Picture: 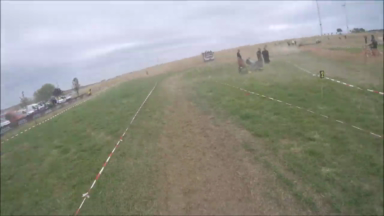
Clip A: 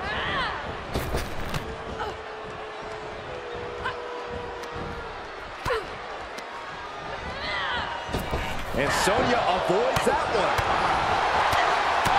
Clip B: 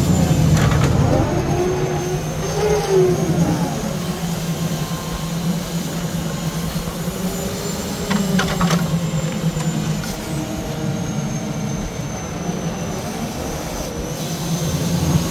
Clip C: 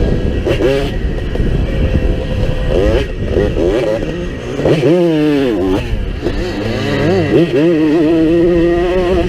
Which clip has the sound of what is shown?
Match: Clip C